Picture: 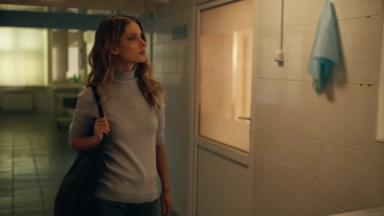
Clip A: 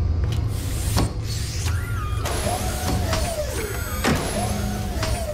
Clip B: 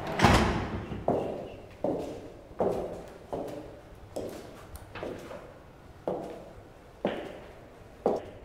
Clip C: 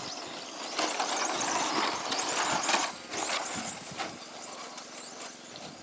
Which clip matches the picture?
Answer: B